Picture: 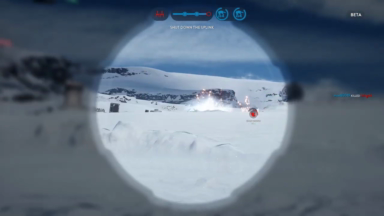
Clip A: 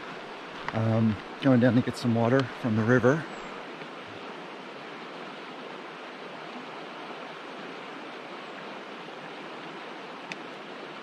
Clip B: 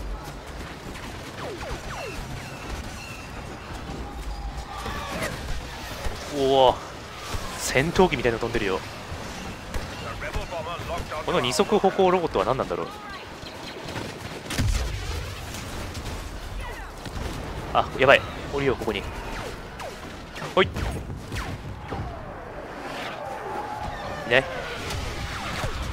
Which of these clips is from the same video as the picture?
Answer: B